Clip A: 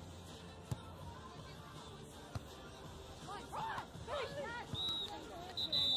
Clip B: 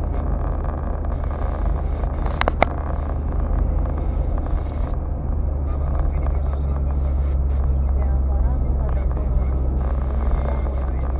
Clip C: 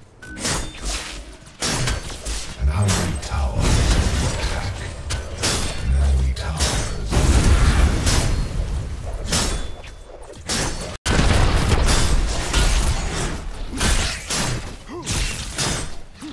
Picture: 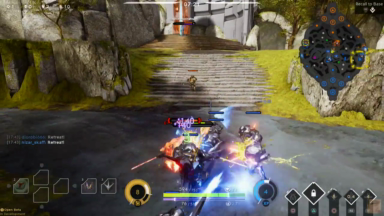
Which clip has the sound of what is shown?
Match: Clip C